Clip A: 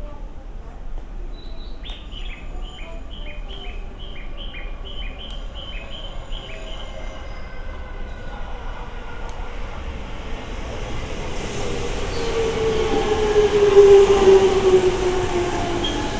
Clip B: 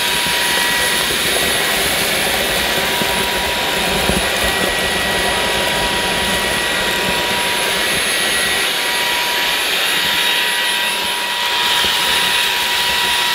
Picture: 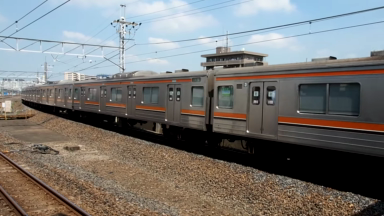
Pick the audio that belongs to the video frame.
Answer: A